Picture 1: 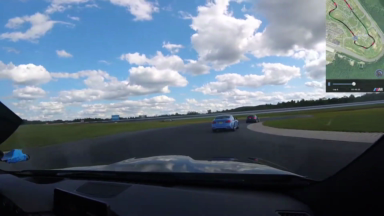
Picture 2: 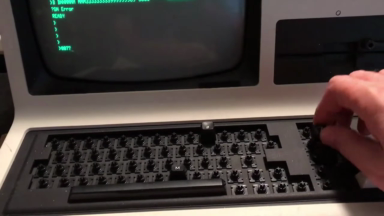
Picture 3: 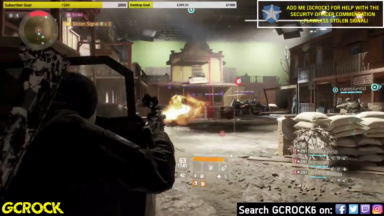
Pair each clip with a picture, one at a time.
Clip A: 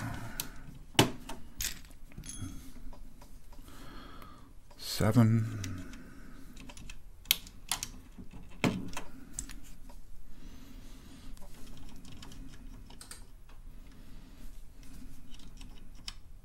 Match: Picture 2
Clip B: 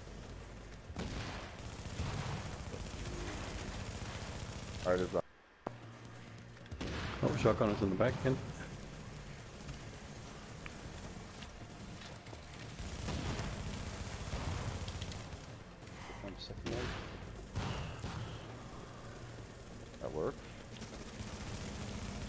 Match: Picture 3